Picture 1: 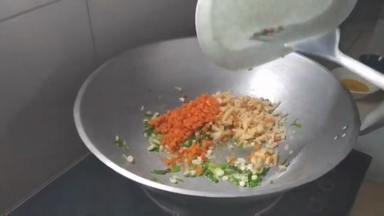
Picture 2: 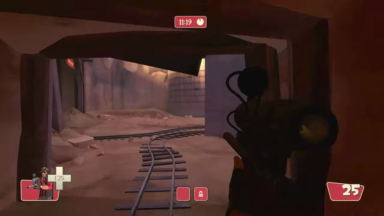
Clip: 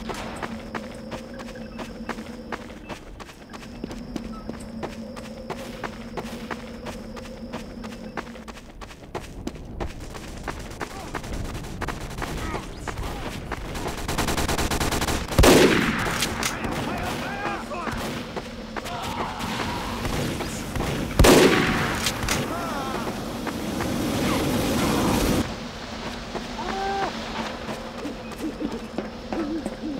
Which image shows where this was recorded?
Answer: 2